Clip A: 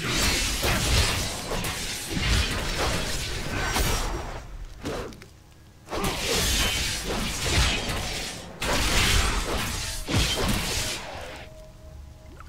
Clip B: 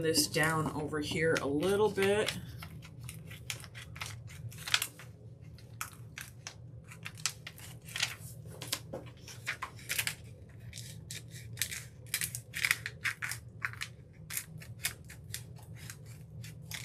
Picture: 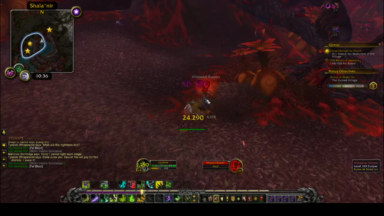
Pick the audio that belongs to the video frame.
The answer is A